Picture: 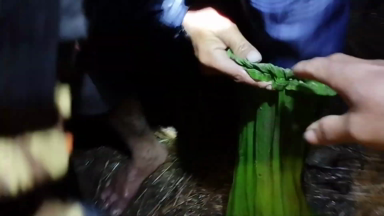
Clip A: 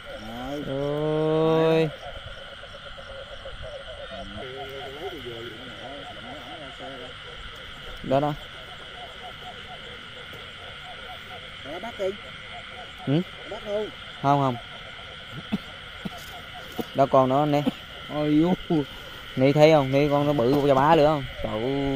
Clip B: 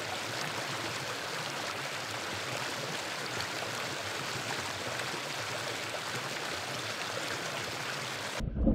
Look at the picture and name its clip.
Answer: A